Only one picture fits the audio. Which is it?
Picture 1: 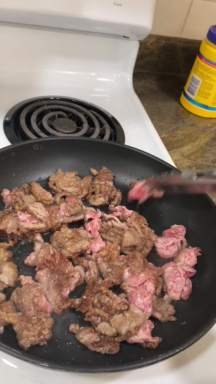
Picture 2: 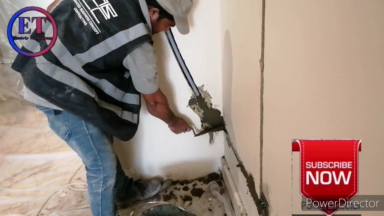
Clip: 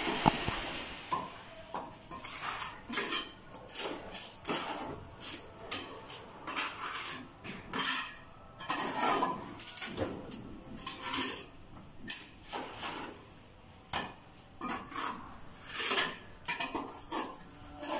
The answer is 2